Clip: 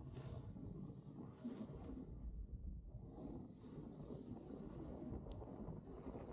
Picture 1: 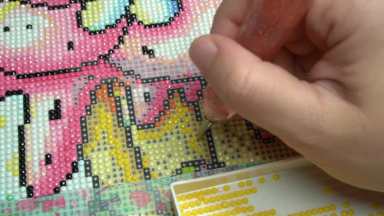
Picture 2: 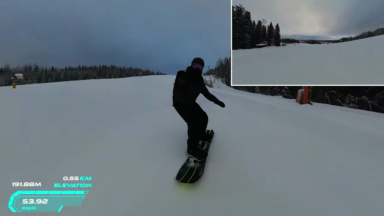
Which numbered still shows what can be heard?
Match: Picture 2